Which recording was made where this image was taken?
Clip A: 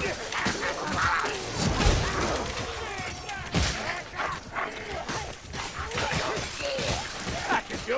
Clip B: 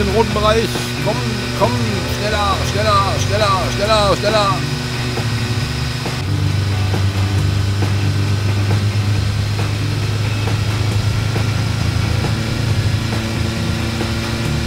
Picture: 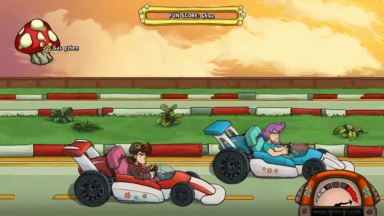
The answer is B